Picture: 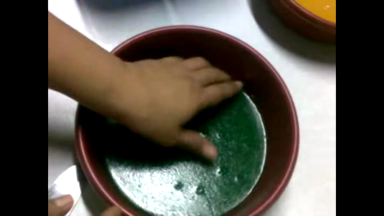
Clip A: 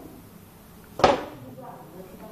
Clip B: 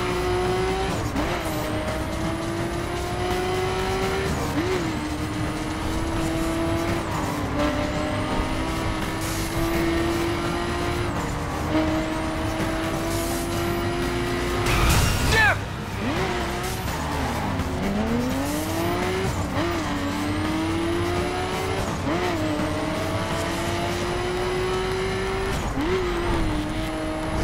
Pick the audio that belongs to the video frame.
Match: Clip A